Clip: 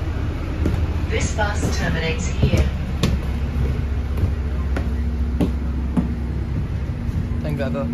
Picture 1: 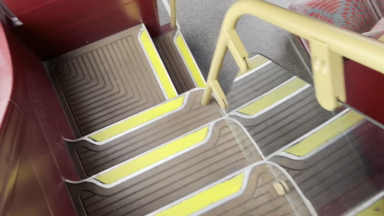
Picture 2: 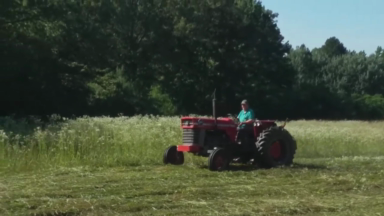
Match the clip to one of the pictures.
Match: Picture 1